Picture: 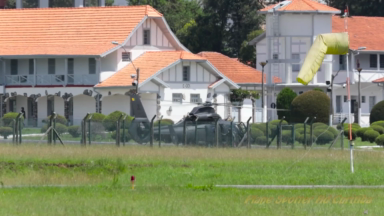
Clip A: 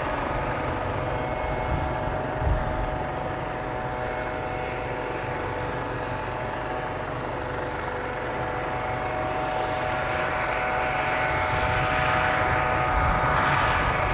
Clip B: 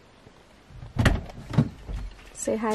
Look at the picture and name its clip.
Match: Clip A